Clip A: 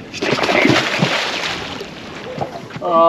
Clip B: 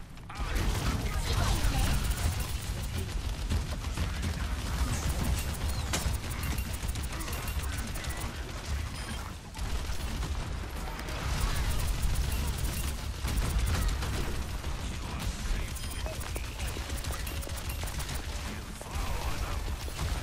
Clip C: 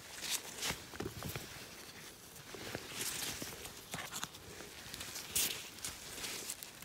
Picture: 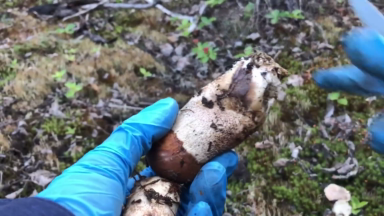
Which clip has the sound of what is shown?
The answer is C